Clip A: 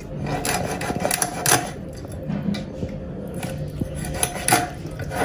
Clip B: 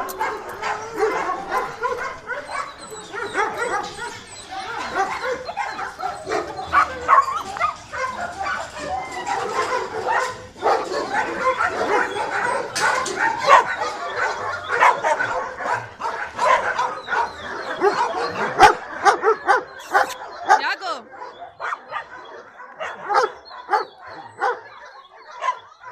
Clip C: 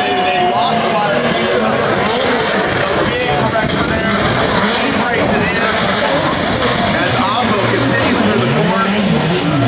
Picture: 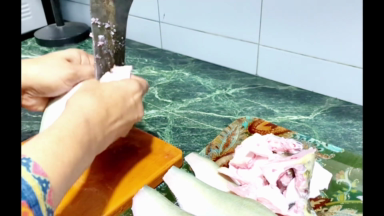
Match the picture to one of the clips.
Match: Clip A